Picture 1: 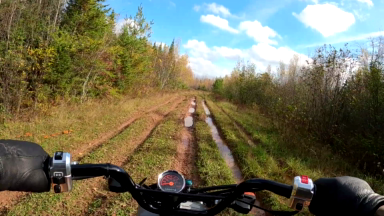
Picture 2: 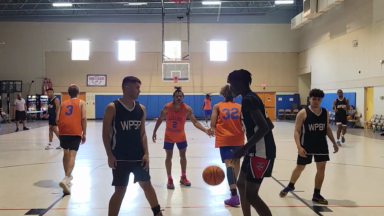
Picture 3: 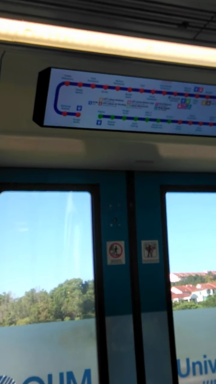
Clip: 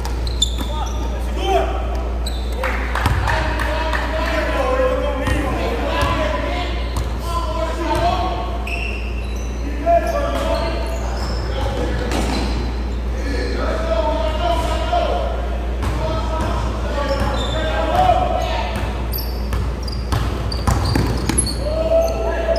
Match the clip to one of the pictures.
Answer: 2